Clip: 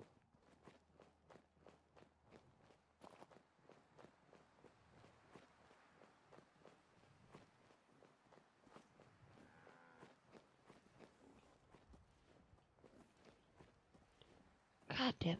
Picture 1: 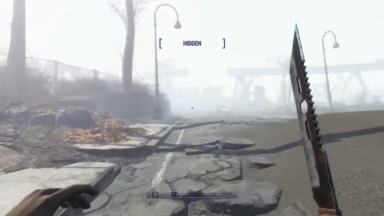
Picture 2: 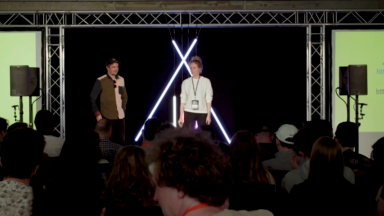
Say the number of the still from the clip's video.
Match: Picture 1